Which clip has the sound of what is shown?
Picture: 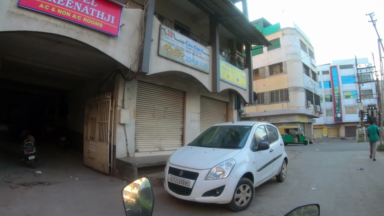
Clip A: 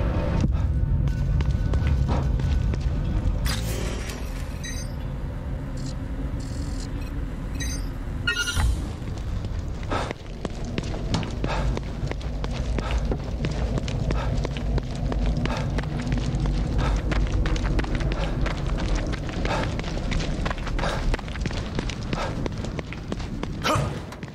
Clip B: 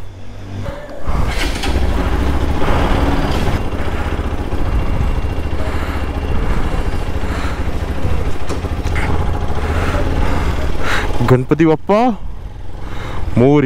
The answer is B